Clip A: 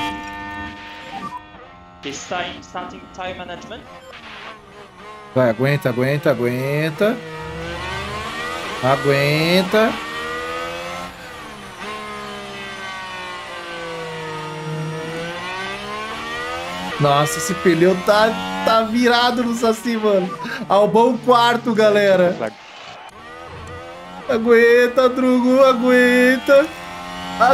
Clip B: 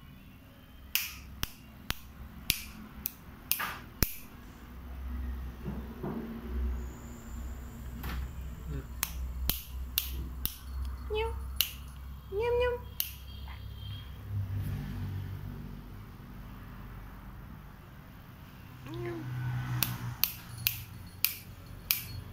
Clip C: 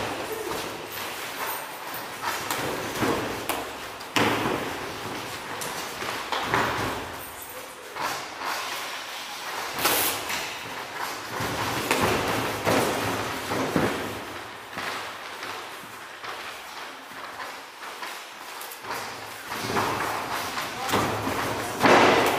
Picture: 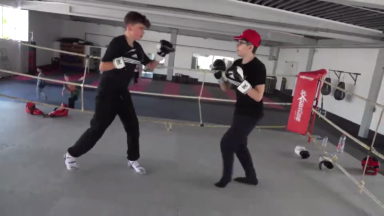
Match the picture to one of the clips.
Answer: C